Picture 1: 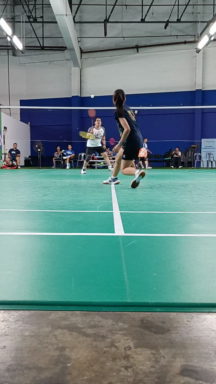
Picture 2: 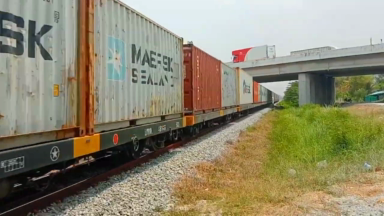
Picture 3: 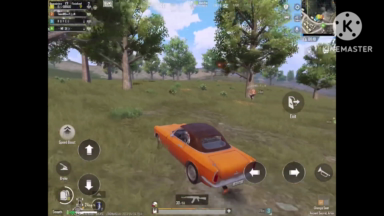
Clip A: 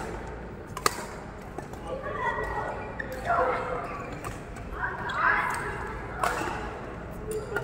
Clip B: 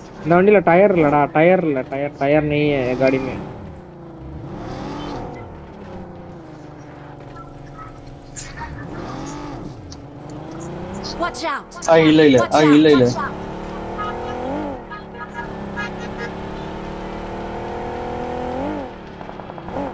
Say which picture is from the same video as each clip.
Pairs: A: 1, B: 3